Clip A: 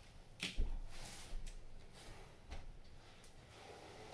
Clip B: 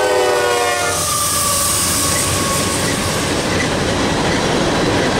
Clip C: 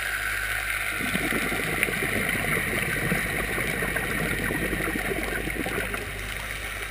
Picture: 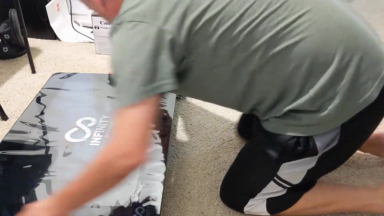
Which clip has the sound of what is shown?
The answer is A